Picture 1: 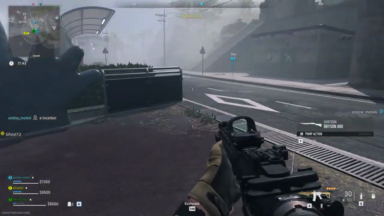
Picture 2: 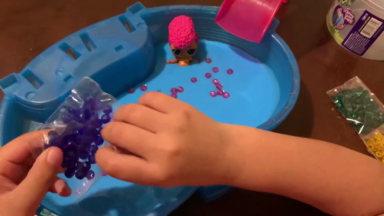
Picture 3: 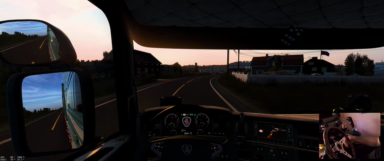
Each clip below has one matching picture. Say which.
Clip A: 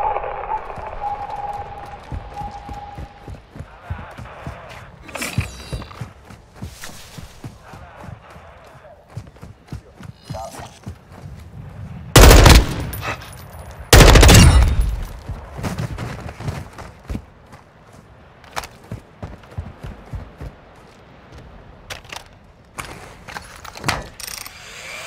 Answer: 1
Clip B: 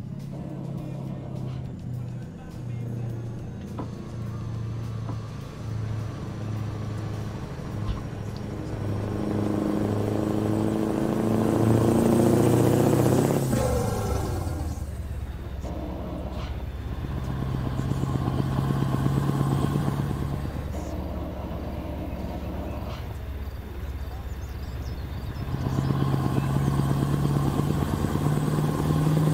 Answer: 3